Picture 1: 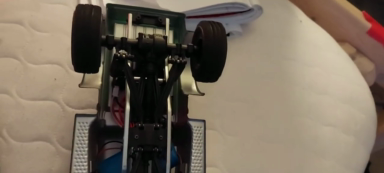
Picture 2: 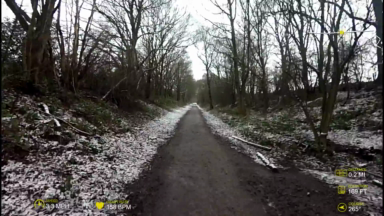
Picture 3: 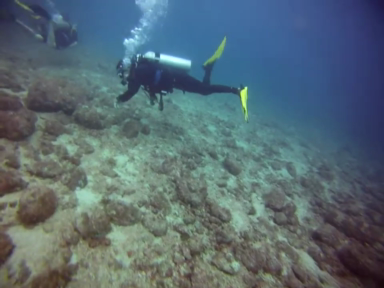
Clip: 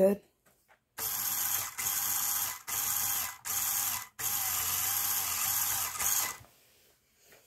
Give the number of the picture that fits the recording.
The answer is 1